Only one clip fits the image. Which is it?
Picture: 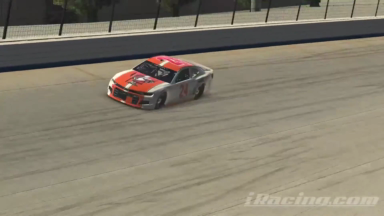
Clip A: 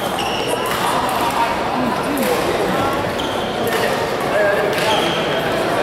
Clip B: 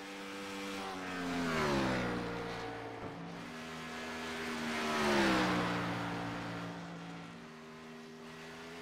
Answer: B